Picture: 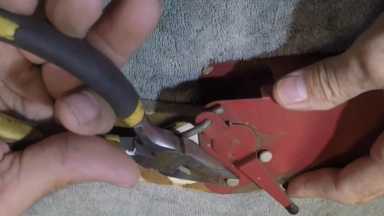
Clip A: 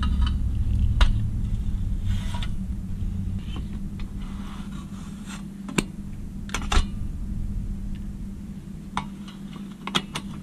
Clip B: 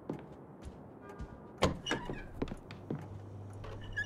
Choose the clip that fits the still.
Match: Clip A